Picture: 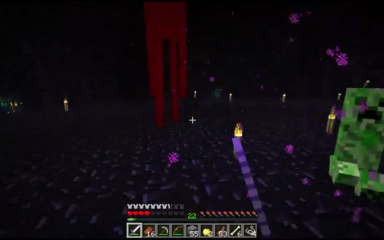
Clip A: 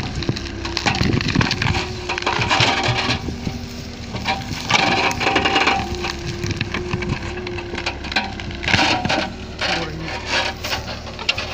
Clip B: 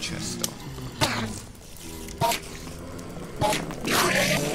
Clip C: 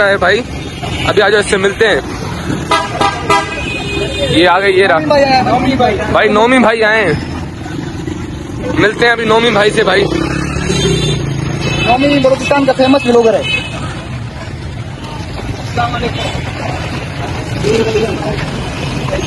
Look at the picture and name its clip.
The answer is B